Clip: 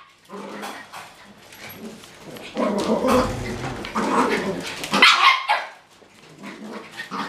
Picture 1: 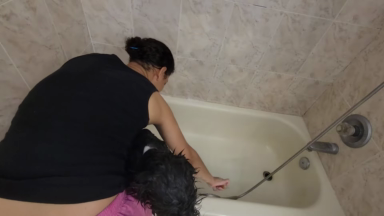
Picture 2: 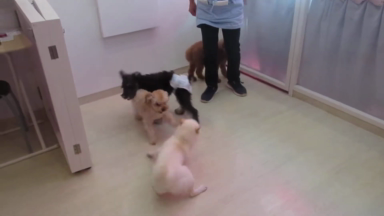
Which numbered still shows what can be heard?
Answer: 2